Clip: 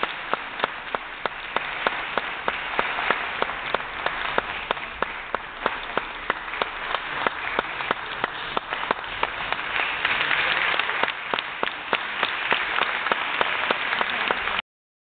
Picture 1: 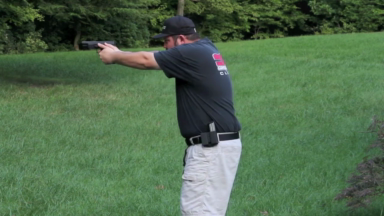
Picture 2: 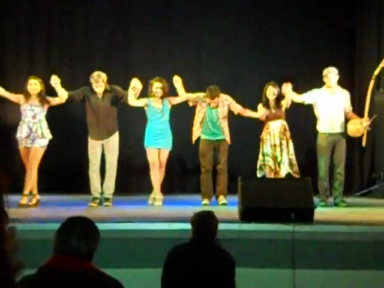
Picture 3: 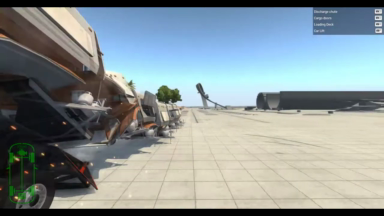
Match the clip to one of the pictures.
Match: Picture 2